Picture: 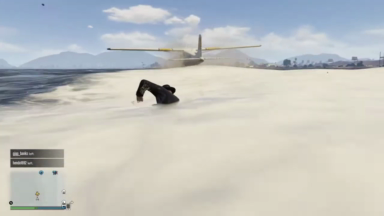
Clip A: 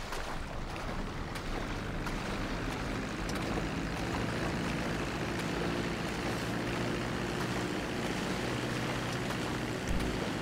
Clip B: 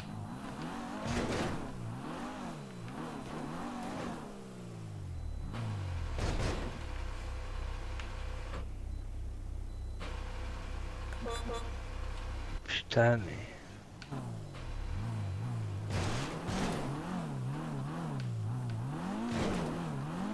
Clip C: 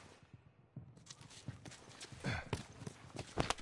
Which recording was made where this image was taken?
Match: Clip A